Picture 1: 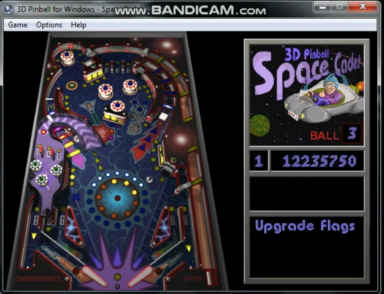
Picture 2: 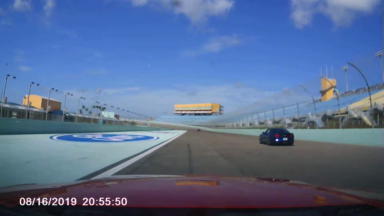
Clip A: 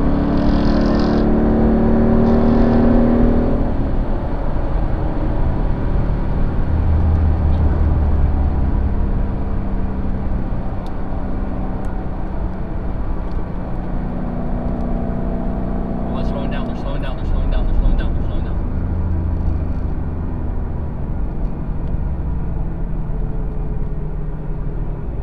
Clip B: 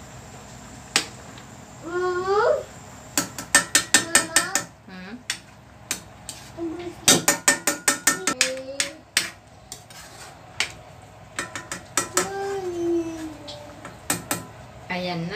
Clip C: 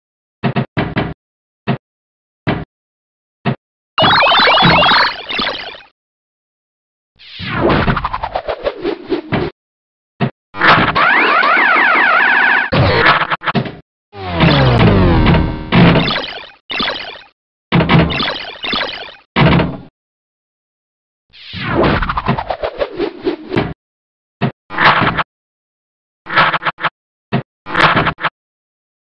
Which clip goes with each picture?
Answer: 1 C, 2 A